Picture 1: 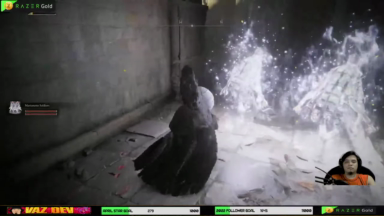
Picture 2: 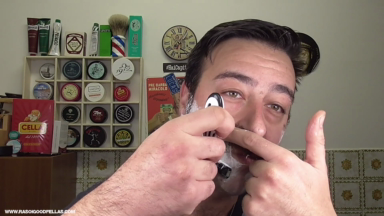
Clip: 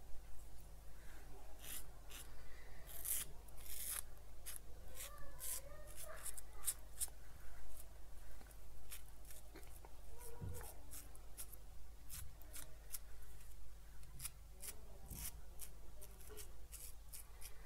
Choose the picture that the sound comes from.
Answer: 2